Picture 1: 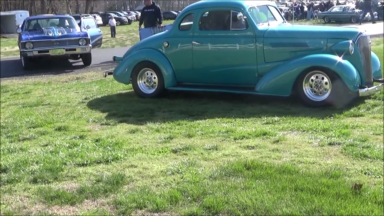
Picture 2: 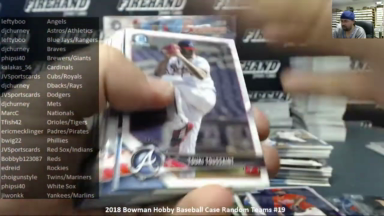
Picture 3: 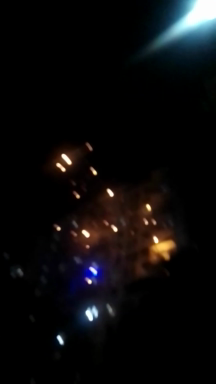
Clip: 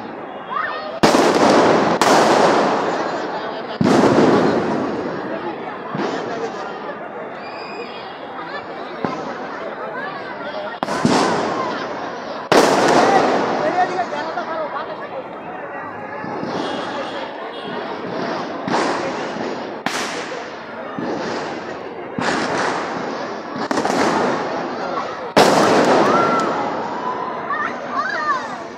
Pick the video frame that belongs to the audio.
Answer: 3